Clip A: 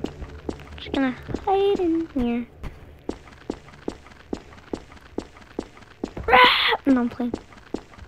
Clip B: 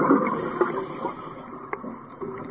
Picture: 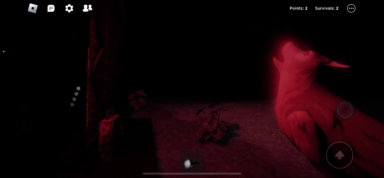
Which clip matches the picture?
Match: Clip A